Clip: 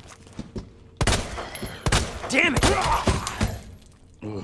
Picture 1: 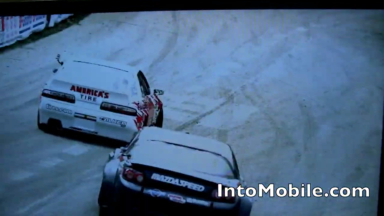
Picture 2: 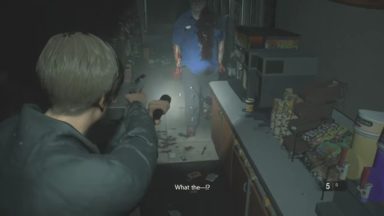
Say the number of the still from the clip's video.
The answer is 2